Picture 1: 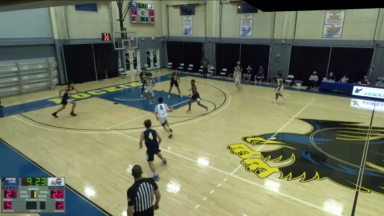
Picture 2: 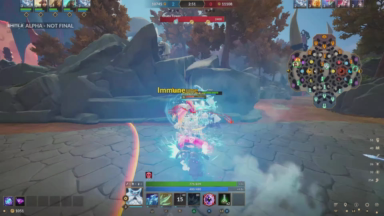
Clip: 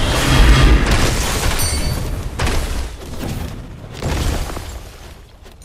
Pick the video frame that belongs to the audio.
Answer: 2